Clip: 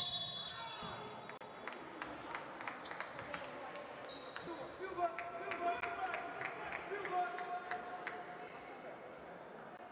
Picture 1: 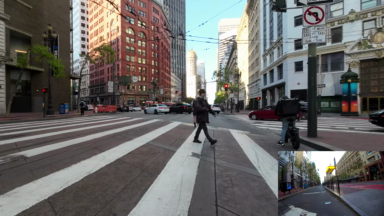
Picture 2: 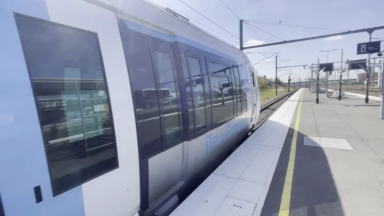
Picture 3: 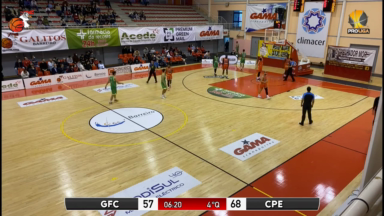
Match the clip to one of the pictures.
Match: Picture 3